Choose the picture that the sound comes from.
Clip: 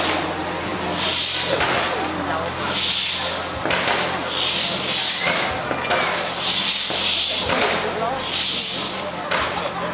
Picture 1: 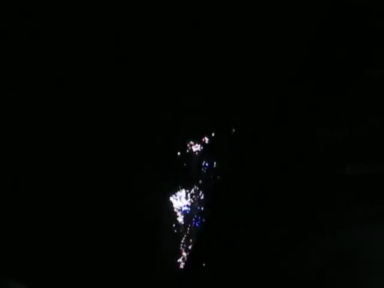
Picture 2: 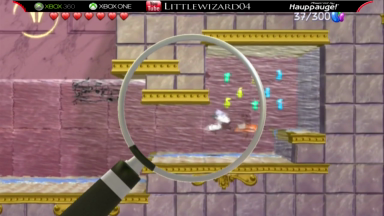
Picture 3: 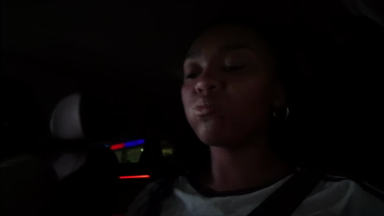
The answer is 1